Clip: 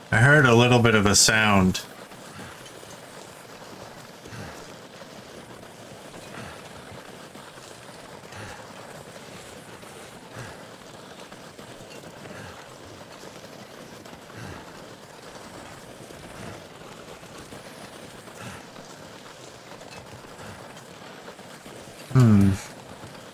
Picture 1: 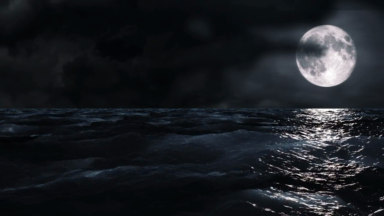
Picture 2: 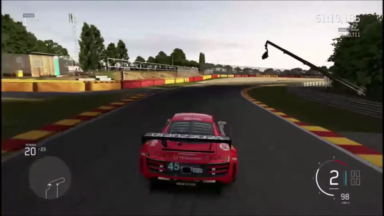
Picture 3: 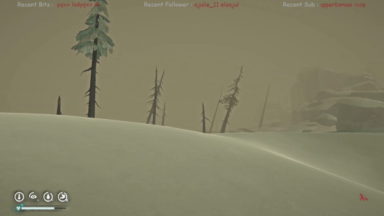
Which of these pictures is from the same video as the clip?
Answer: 3